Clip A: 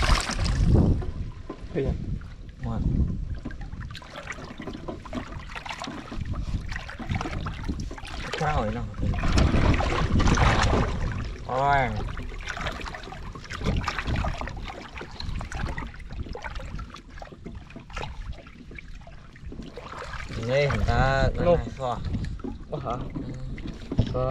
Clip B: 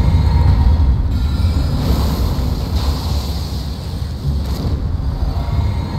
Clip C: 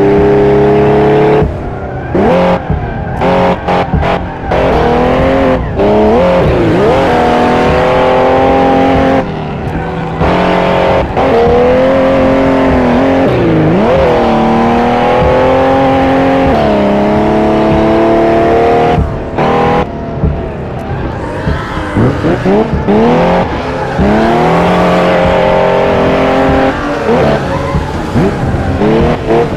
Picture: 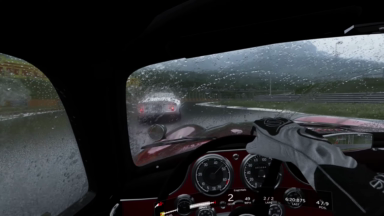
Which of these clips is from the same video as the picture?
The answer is C